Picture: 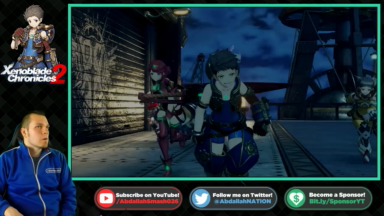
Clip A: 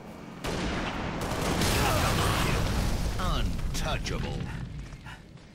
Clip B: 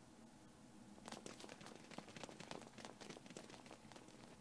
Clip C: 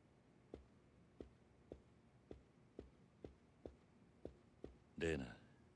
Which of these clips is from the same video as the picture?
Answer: B